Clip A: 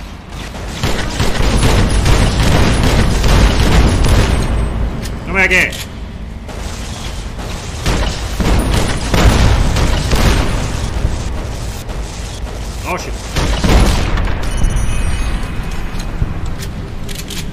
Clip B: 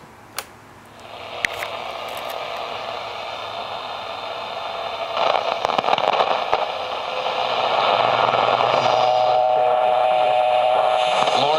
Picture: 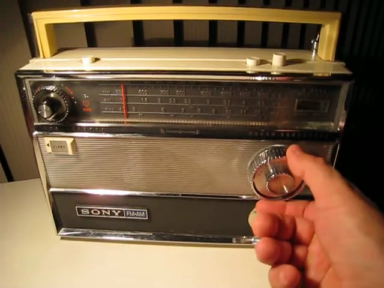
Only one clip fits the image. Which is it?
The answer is B